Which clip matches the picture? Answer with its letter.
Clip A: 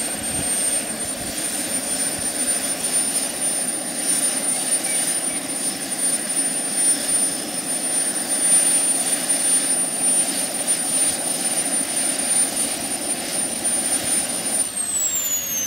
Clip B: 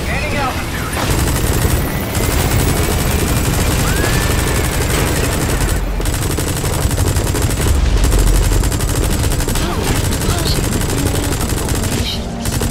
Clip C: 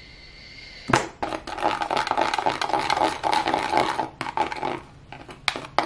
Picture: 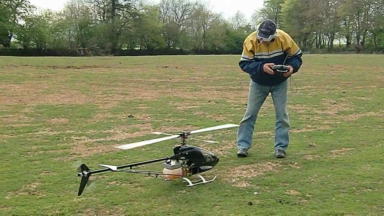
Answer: A